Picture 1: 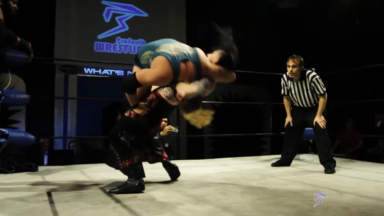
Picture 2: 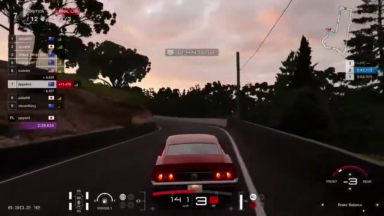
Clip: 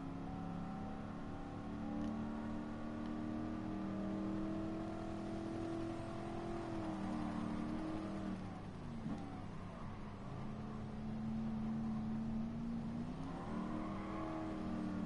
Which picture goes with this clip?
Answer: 2